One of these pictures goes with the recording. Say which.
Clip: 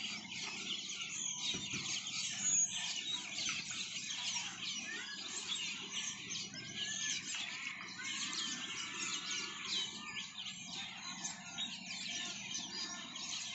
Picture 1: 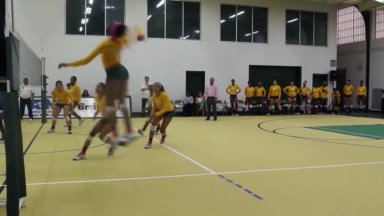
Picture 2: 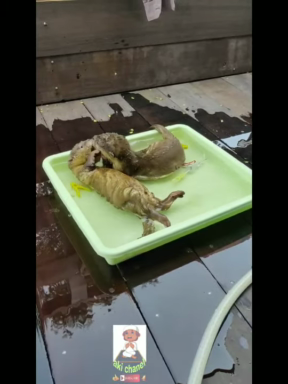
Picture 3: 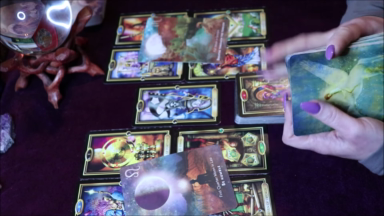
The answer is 2